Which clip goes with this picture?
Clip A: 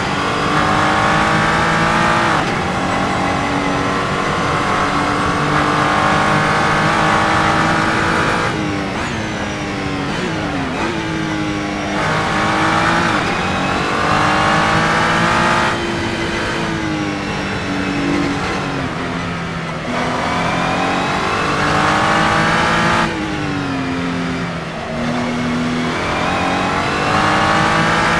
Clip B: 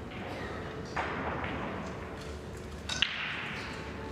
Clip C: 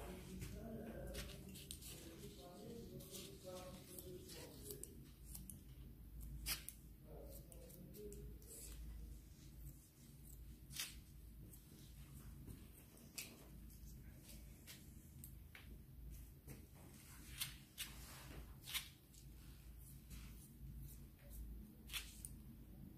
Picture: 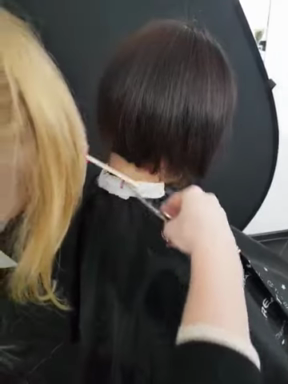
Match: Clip C